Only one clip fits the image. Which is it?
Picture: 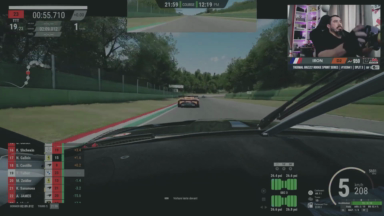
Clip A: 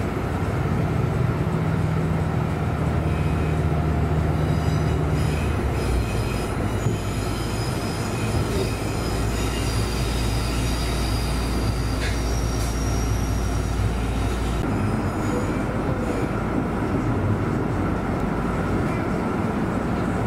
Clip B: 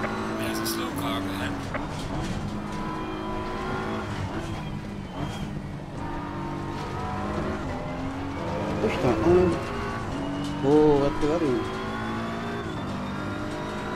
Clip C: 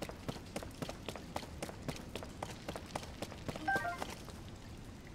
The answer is B